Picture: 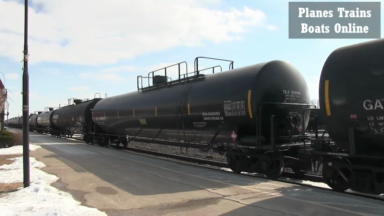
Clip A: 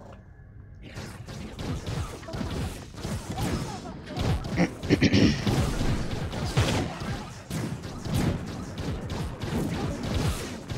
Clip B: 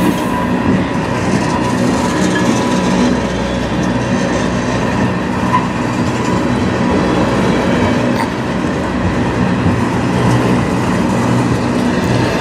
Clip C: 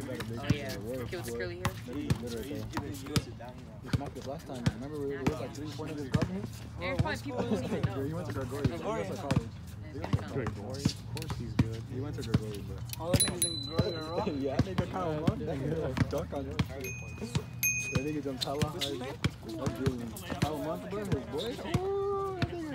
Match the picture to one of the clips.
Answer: B